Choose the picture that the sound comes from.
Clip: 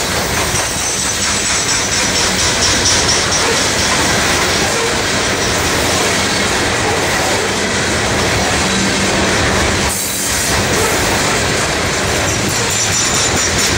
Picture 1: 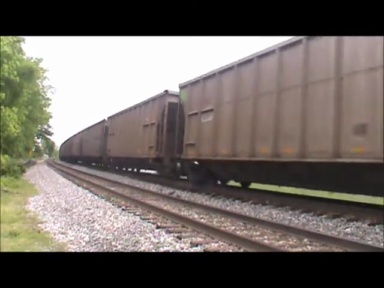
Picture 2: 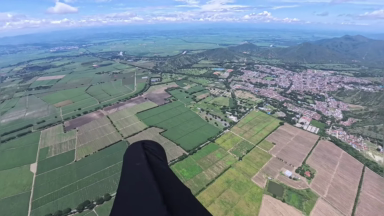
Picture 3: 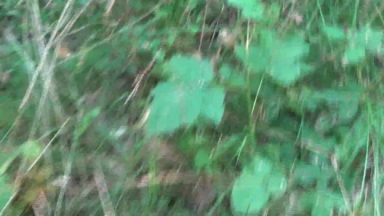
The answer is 1